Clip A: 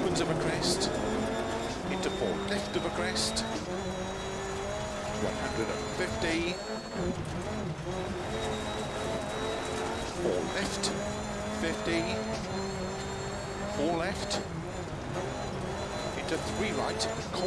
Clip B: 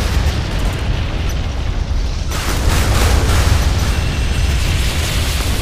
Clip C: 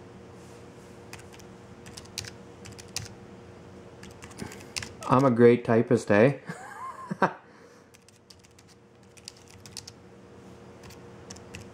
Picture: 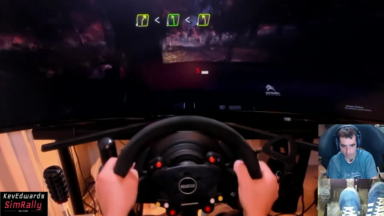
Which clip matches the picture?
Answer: A